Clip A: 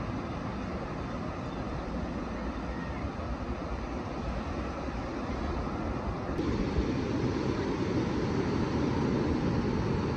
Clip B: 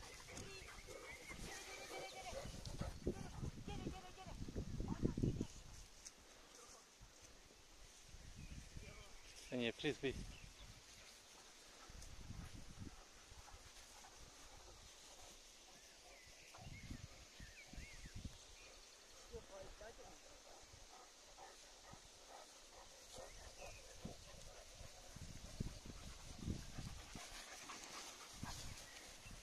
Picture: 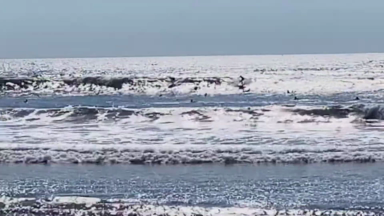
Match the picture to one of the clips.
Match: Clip A